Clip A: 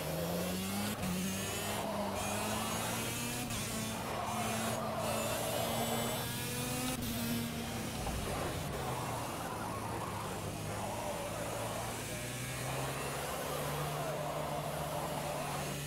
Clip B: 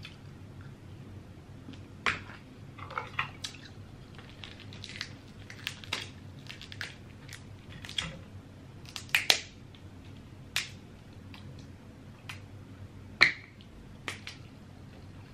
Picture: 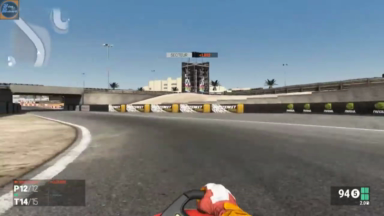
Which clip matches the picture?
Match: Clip A